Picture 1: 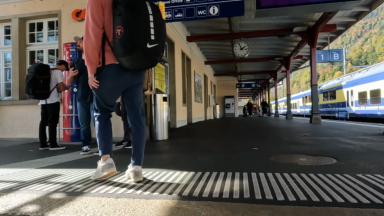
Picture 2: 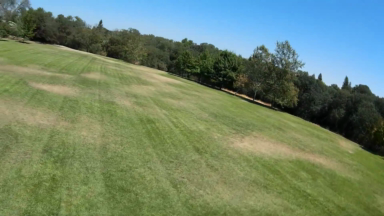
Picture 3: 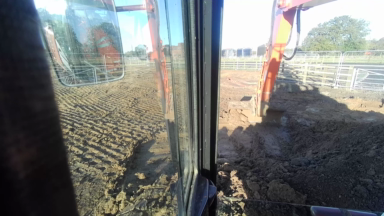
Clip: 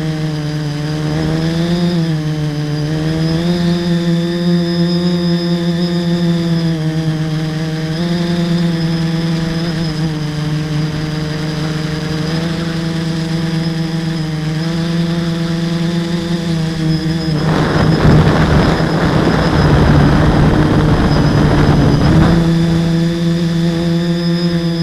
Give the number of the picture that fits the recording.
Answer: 2